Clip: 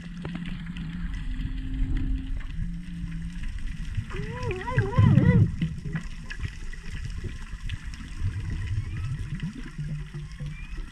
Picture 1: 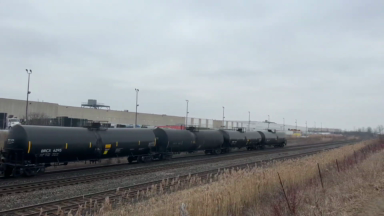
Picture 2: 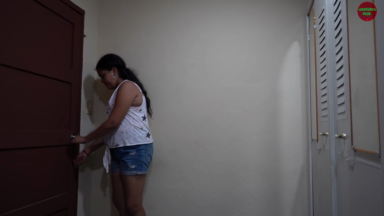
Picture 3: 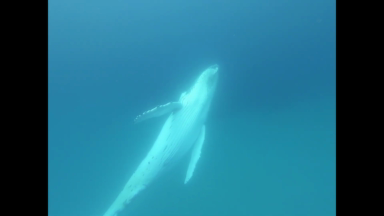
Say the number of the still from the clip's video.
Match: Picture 3